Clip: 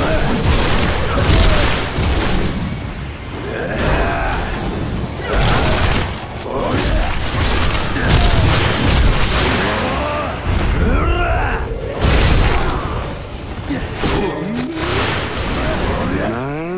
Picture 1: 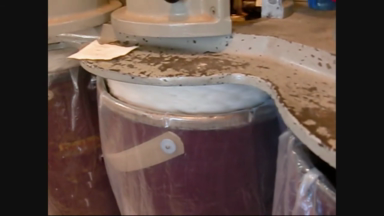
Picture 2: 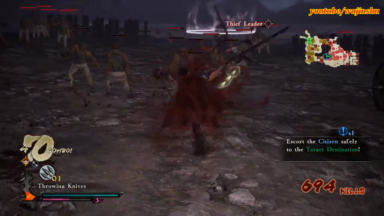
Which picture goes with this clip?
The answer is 2